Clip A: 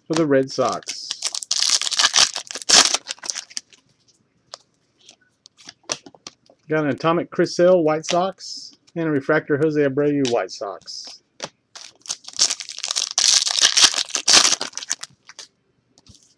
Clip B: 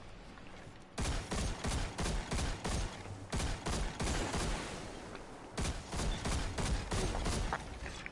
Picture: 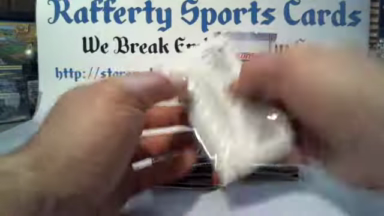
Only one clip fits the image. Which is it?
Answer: A